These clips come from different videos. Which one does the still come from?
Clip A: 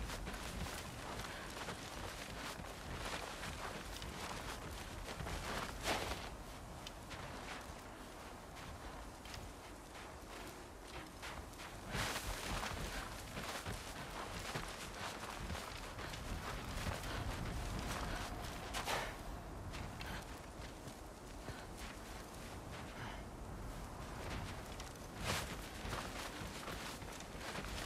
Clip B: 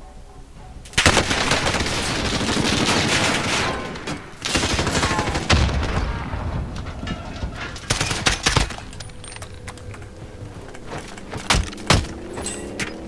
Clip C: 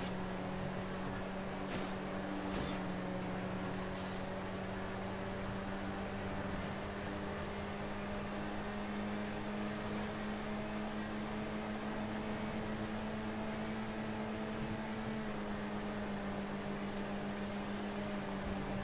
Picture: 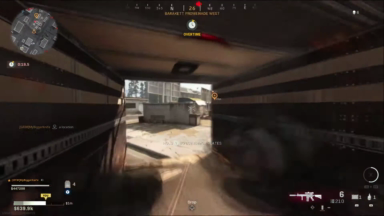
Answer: B